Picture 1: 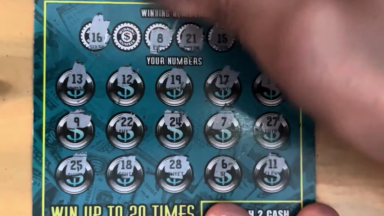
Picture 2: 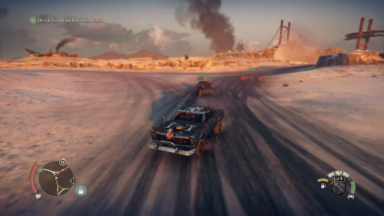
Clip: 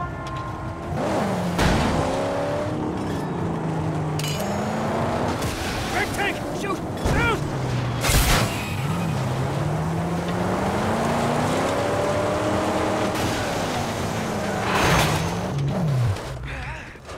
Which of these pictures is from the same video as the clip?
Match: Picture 2